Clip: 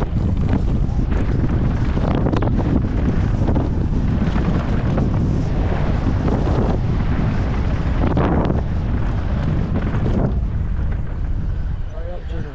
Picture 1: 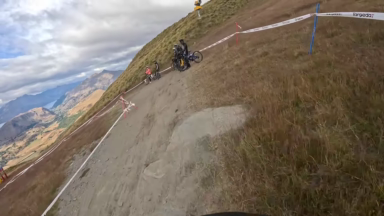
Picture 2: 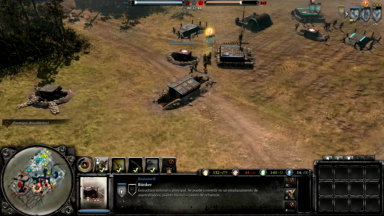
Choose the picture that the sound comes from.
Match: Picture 1